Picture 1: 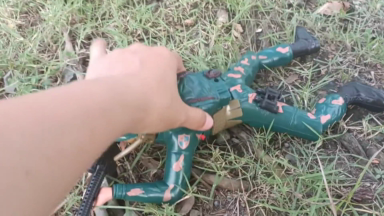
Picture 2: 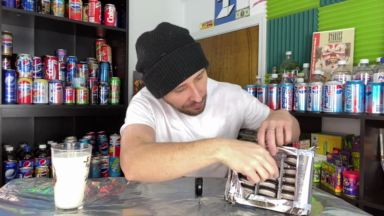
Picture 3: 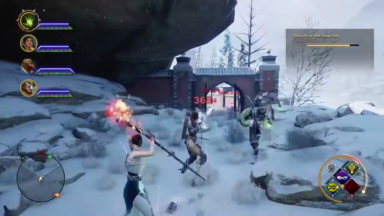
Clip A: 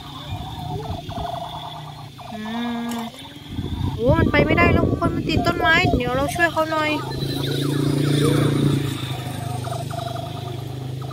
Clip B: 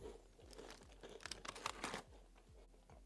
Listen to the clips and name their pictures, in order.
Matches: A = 1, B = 2